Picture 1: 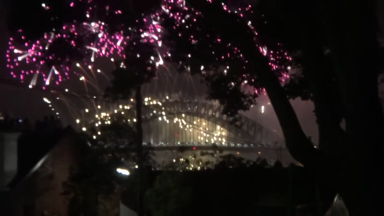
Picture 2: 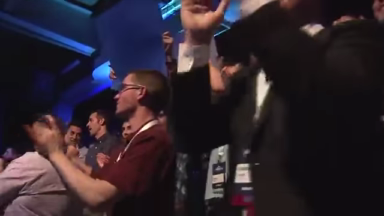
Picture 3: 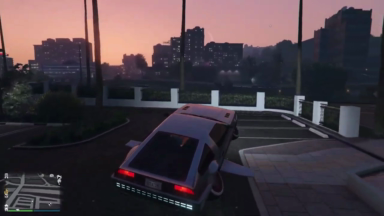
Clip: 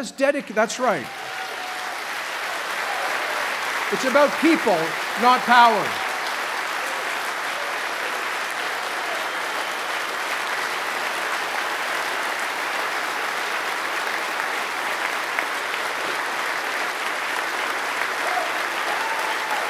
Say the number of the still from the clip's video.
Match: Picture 2